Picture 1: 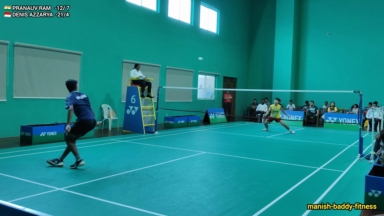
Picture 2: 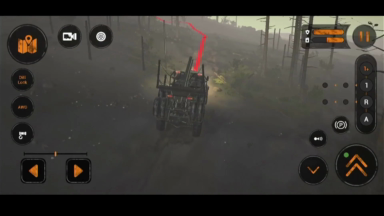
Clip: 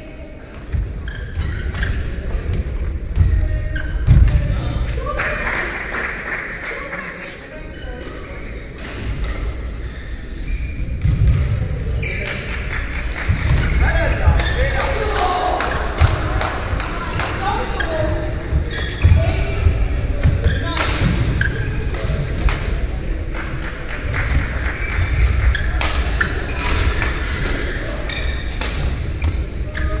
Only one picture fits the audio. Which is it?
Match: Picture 1